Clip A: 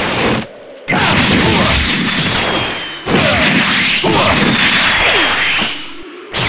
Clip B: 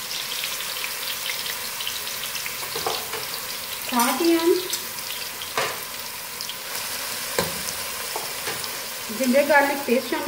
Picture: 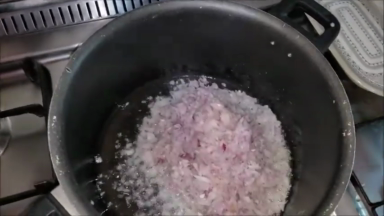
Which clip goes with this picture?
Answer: B